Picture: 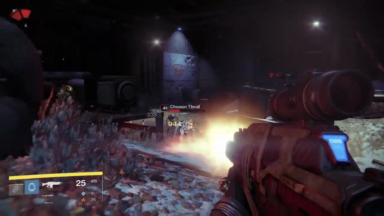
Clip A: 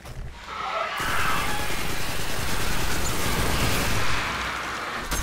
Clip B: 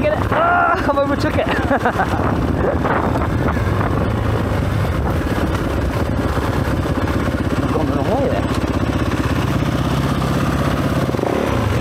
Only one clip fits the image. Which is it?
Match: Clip A